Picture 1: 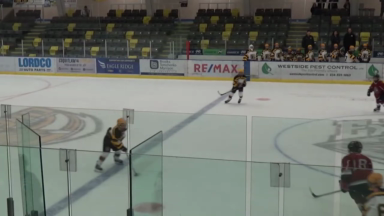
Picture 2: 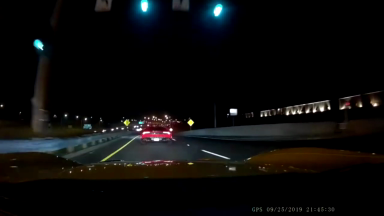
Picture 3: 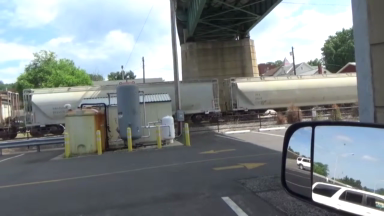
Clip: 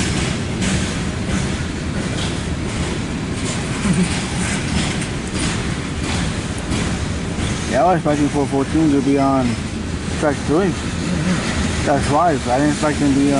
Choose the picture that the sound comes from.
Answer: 3